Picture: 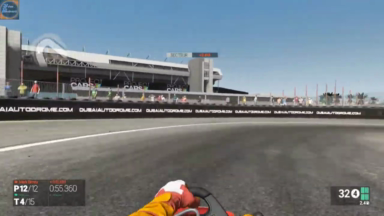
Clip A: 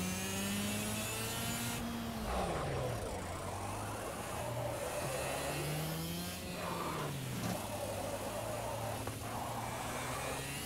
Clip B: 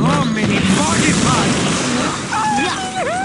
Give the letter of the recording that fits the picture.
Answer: A